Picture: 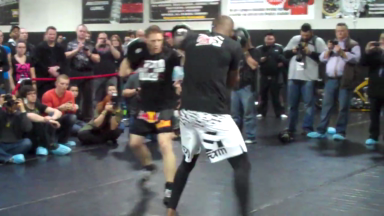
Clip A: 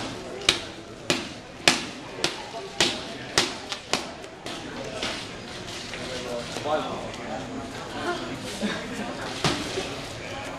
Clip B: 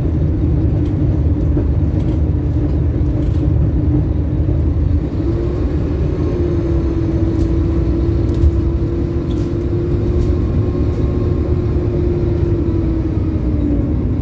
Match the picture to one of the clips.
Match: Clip A